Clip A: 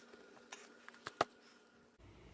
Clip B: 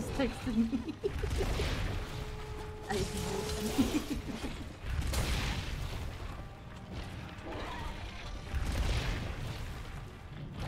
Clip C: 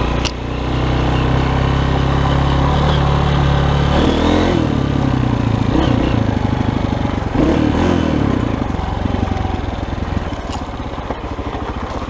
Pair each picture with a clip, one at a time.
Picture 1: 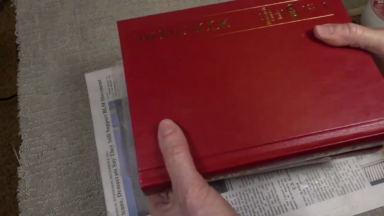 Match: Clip A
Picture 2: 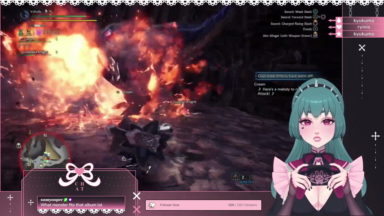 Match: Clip B